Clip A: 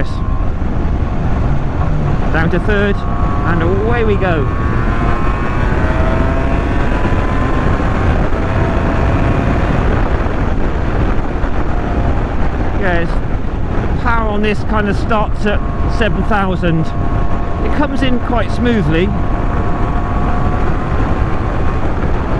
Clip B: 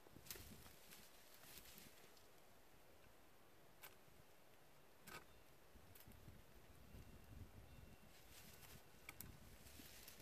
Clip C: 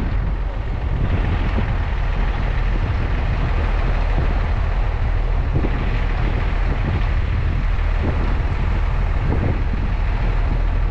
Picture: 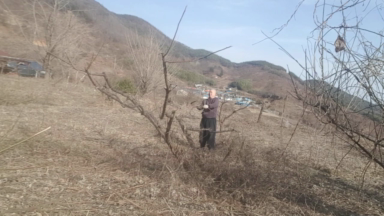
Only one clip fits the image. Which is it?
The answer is B